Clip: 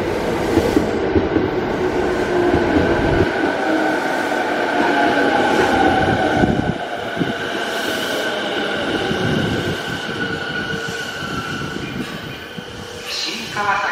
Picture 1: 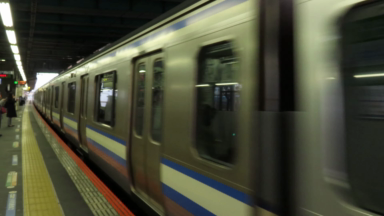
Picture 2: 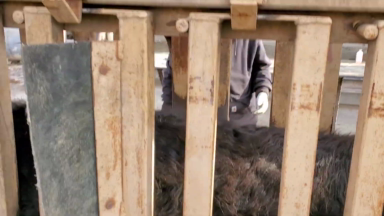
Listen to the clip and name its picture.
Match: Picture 1